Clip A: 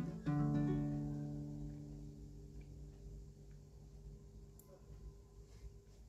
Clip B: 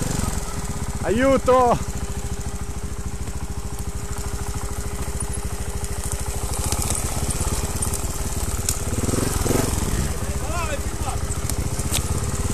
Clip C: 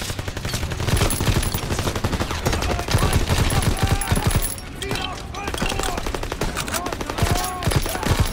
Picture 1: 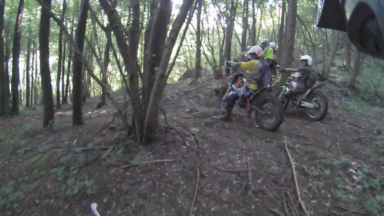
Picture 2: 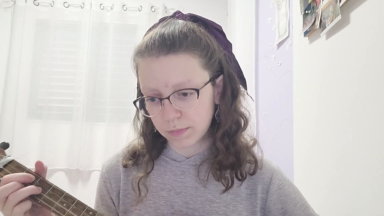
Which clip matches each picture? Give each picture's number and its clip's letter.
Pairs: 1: B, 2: A